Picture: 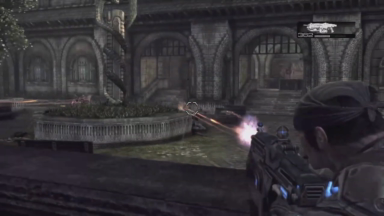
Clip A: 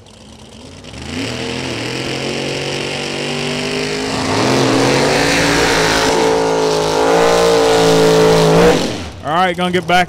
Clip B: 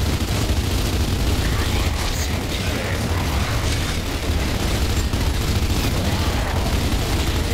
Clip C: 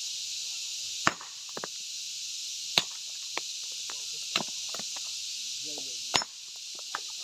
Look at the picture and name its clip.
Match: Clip B